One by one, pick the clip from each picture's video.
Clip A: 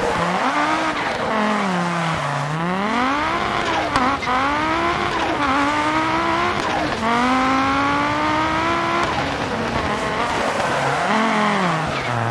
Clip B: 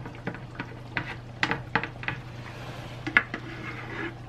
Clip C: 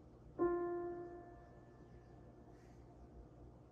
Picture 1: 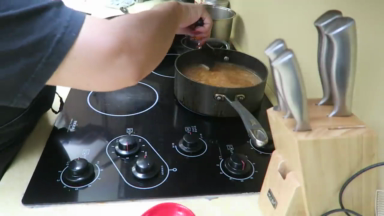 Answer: B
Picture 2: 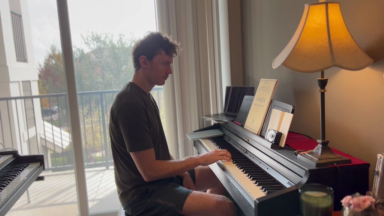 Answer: C